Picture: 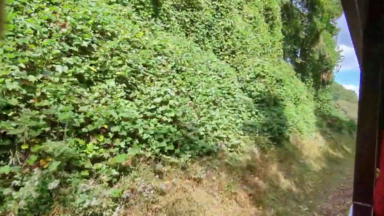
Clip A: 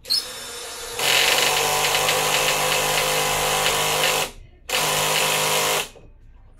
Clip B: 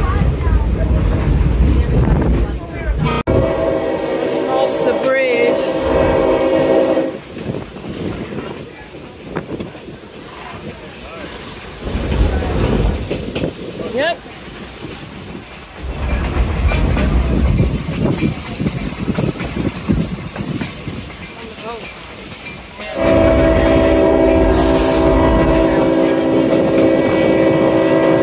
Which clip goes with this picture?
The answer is B